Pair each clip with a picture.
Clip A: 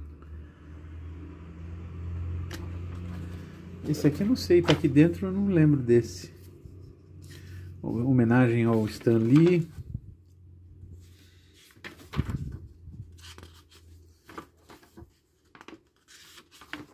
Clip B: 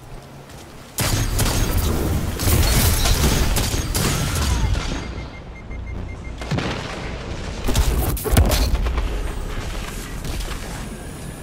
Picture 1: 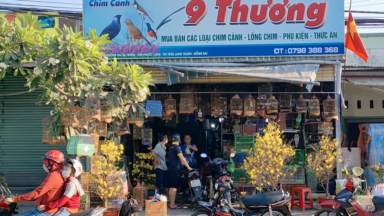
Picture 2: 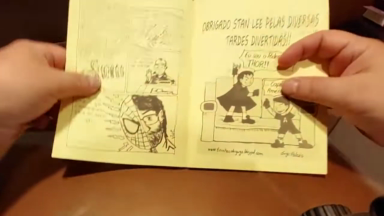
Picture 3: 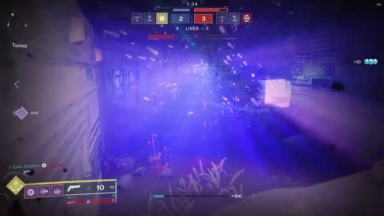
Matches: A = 2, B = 3